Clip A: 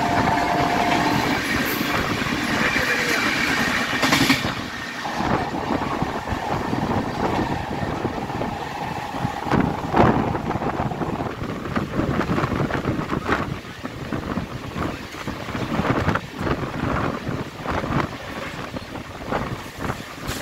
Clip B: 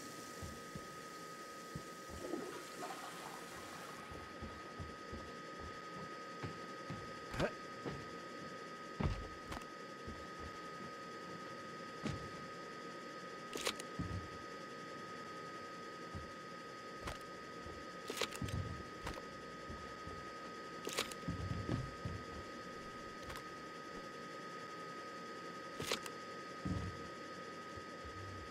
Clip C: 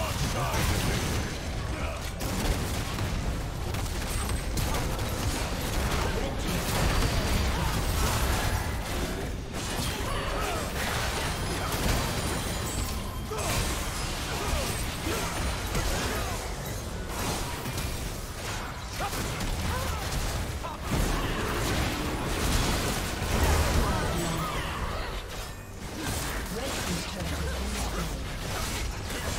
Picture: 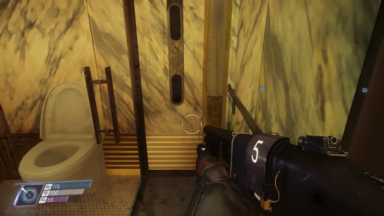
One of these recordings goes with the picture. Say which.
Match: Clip B